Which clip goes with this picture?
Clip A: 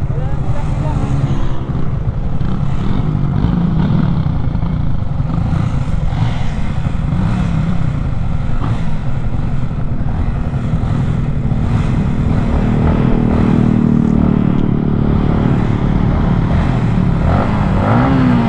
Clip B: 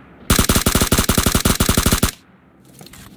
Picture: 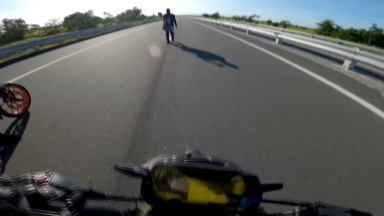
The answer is A